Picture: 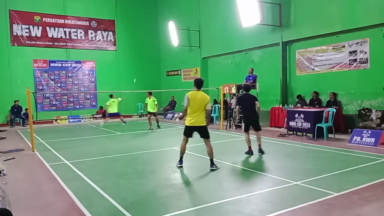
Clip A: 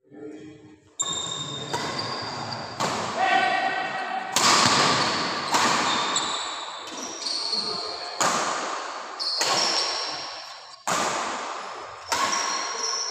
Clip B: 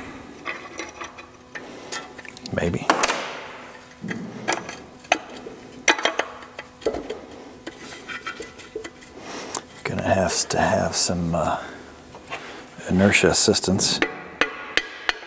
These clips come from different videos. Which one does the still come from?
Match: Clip A